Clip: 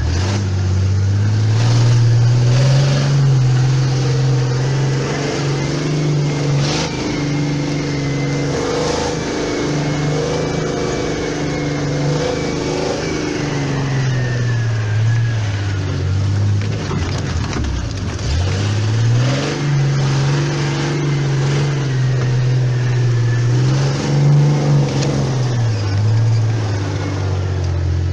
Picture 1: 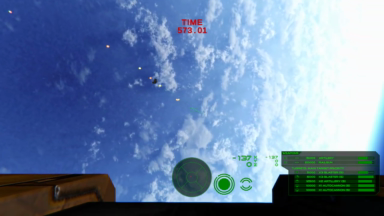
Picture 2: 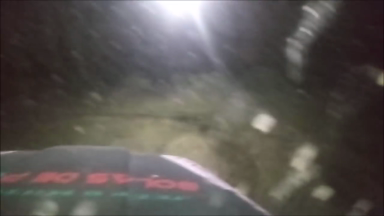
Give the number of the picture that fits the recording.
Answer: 2